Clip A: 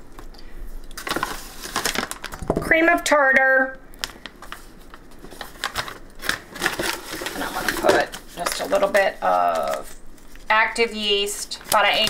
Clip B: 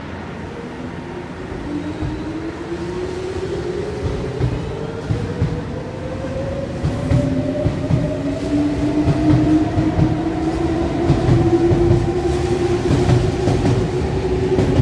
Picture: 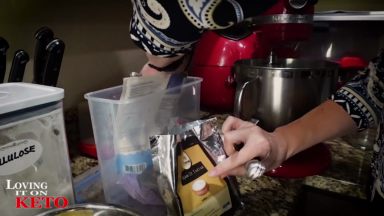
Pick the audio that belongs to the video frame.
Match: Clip A